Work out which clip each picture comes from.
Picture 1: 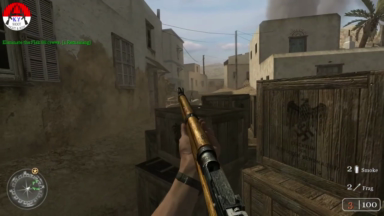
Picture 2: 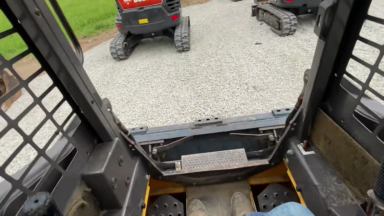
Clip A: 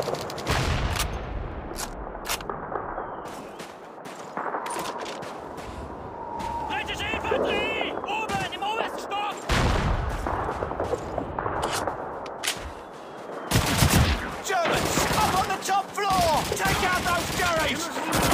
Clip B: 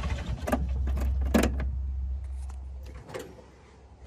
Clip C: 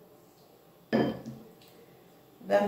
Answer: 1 A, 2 B